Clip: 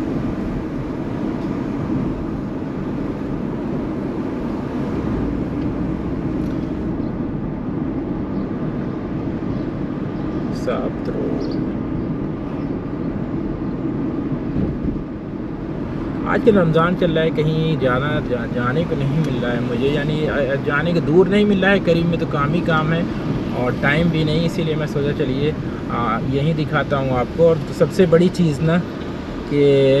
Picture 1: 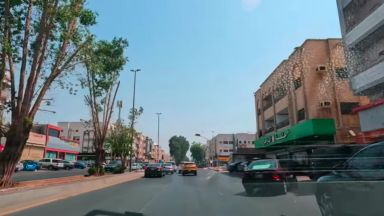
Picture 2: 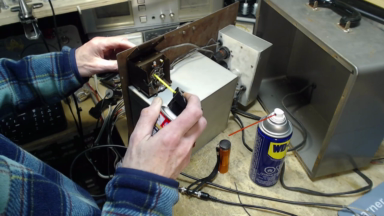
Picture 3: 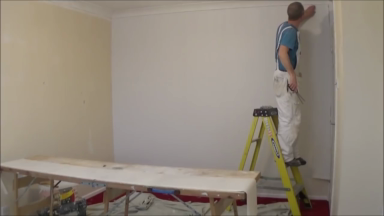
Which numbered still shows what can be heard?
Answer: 1